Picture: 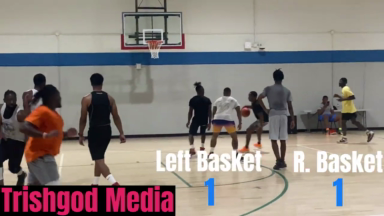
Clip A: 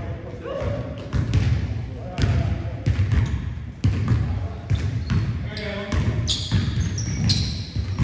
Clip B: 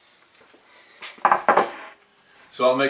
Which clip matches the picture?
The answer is A